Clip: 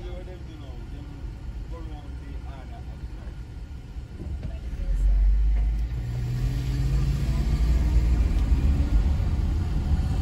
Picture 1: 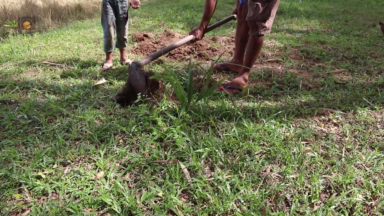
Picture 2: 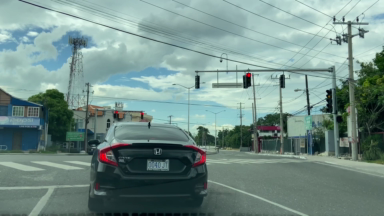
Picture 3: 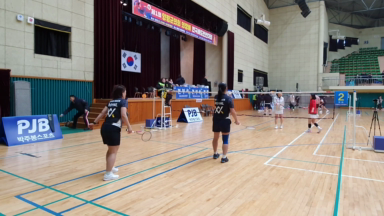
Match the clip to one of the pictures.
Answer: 2